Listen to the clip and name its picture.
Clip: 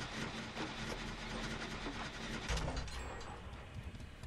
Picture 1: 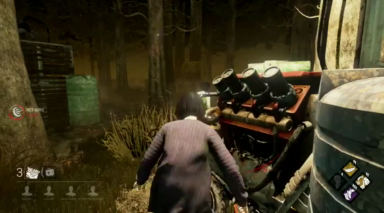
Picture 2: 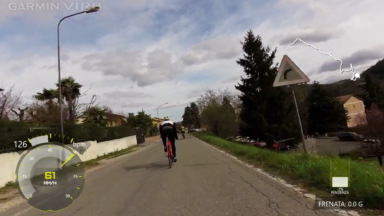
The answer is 1